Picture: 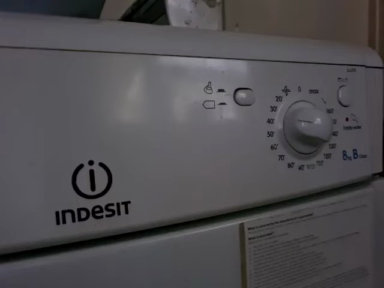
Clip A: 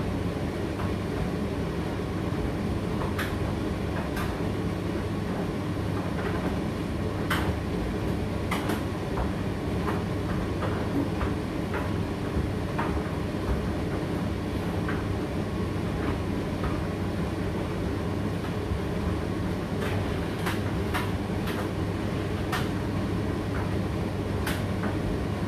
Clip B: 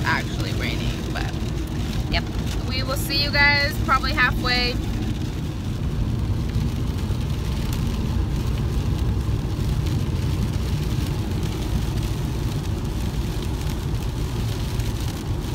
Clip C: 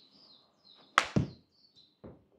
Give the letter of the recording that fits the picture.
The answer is A